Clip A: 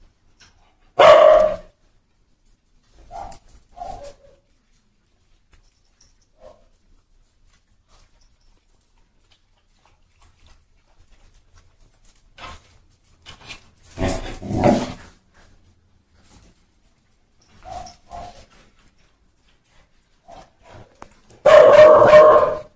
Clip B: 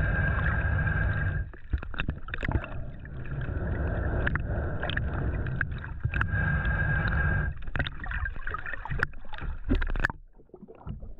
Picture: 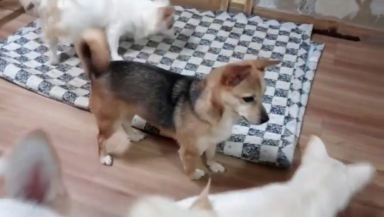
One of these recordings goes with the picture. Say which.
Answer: A